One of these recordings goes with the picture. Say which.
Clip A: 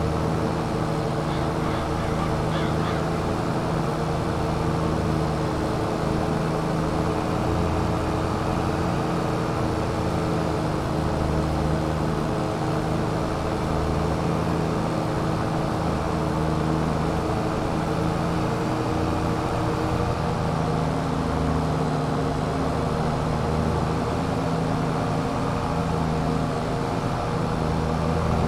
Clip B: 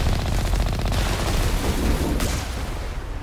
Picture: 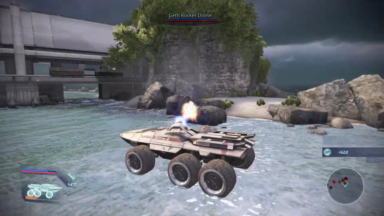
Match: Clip B